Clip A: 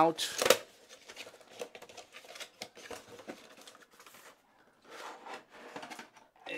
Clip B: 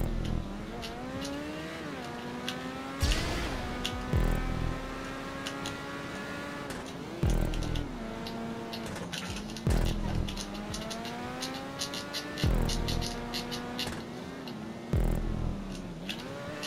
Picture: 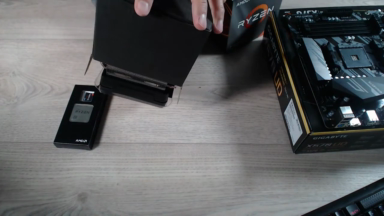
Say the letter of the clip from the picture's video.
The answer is A